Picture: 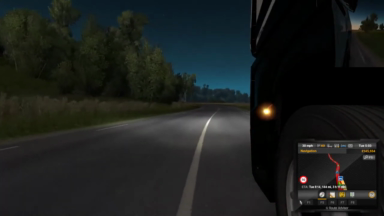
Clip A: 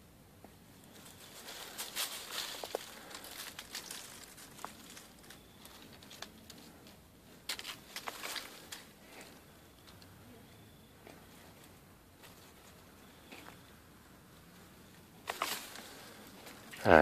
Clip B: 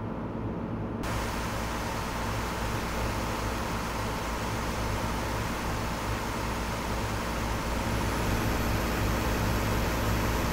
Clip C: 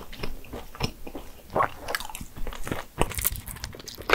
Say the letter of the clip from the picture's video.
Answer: B